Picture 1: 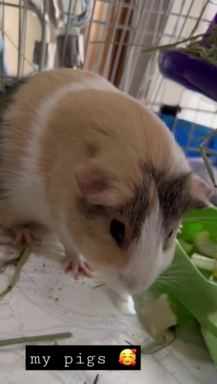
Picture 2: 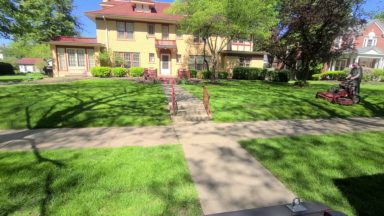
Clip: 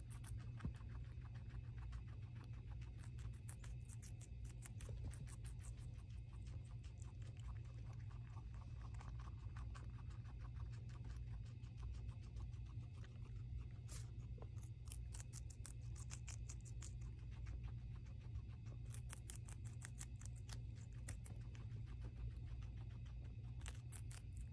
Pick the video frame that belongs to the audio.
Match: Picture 1